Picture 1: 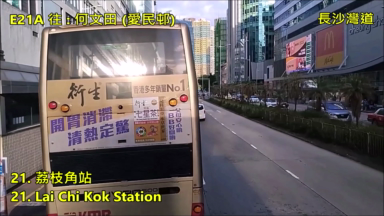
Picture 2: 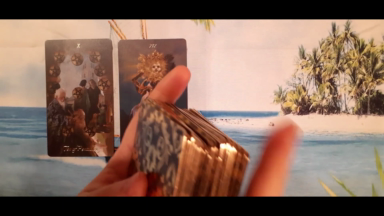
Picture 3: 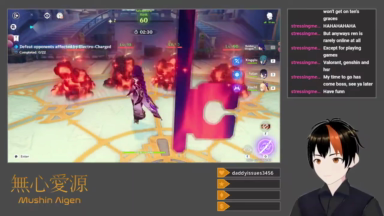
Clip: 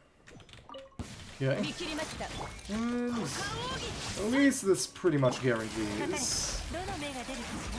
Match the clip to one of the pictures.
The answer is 3